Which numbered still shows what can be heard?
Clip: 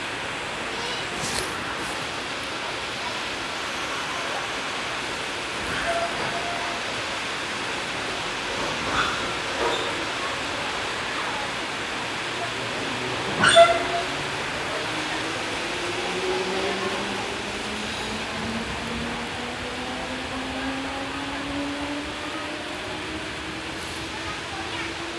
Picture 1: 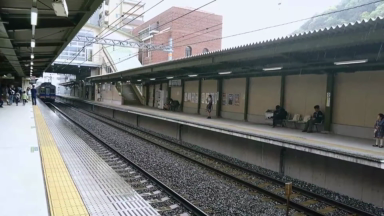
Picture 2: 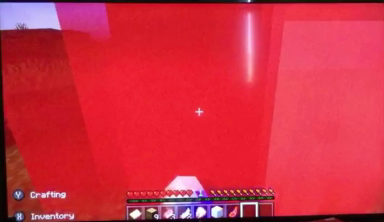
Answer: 1